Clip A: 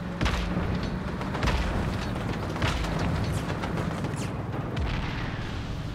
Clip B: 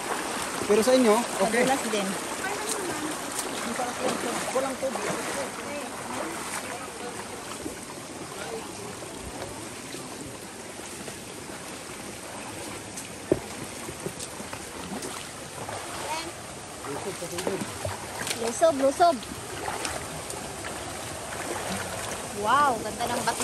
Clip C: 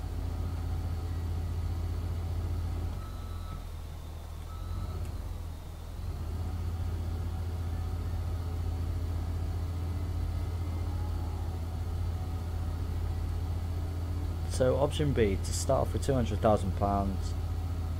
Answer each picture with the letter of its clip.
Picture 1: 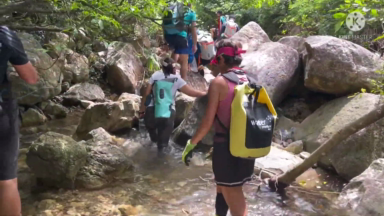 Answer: B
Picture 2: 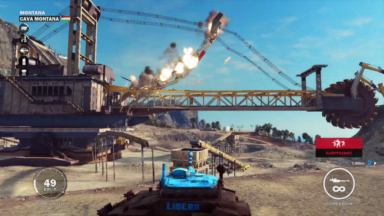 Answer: A